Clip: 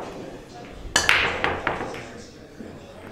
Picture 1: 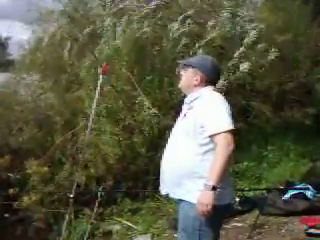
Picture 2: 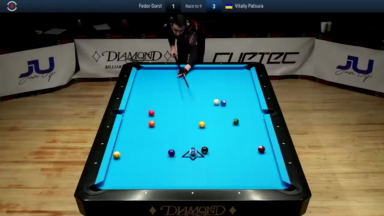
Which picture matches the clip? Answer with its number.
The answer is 2